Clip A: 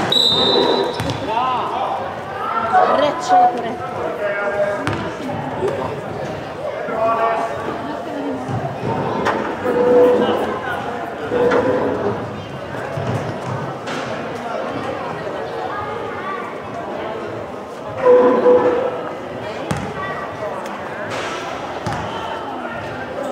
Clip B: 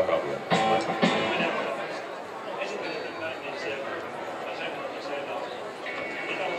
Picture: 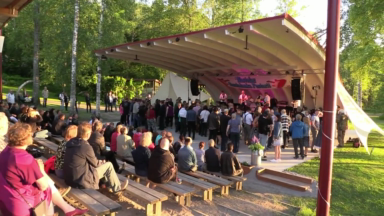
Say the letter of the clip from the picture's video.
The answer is B